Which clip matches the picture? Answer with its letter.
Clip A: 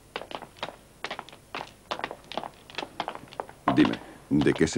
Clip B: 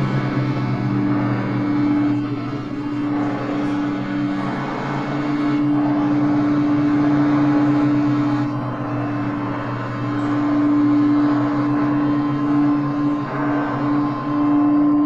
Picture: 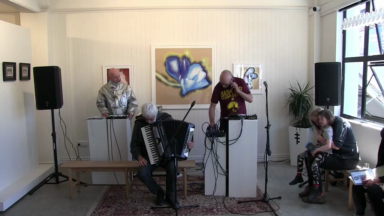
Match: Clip B